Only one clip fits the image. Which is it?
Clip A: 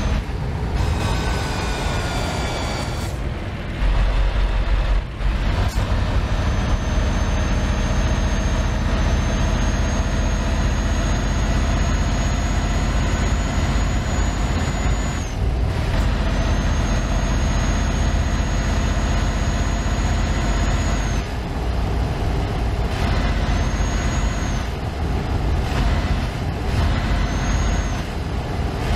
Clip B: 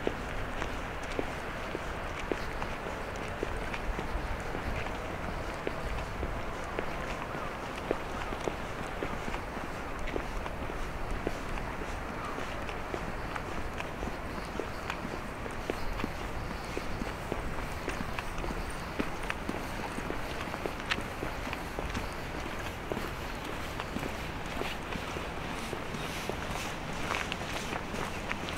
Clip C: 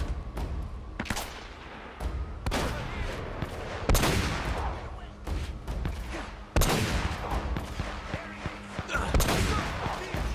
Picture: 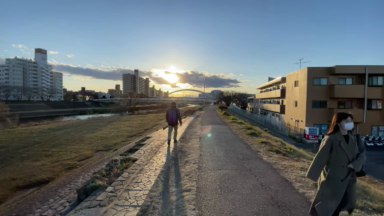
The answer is B